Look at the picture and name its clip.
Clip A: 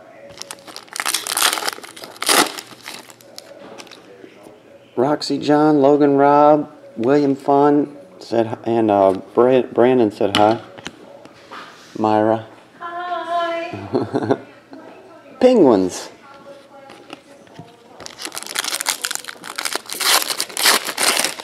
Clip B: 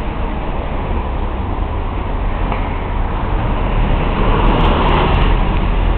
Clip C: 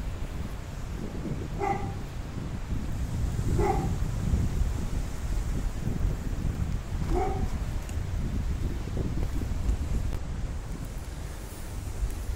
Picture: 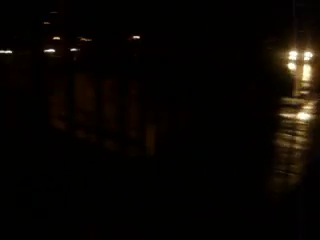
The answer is B